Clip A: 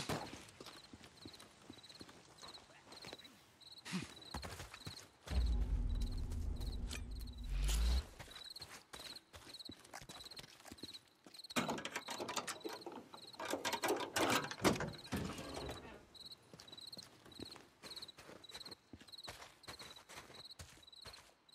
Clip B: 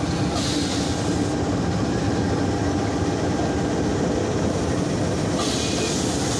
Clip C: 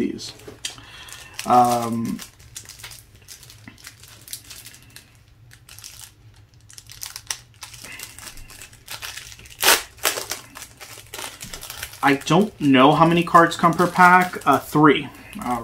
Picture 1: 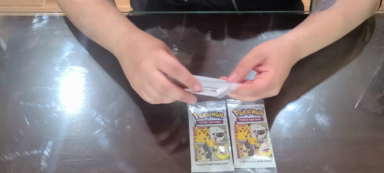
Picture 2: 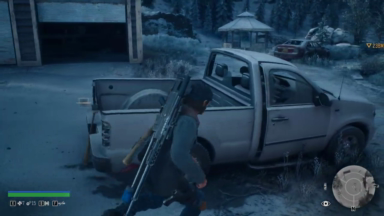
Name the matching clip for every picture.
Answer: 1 C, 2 A